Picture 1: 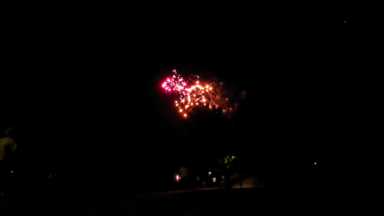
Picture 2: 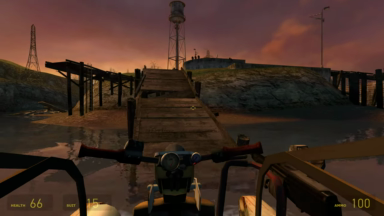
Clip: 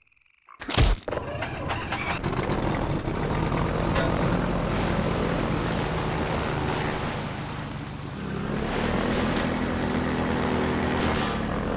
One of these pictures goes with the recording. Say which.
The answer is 2